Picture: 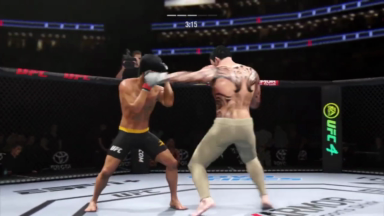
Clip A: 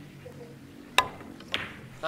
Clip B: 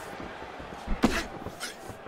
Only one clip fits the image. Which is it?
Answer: B